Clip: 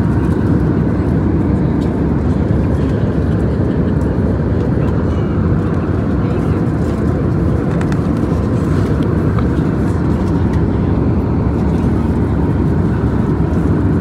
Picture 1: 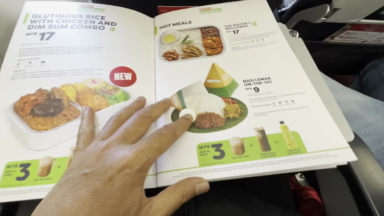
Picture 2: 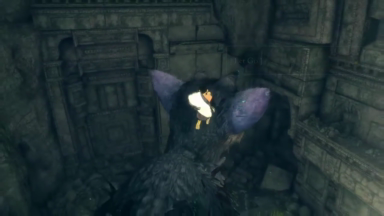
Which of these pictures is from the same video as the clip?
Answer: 1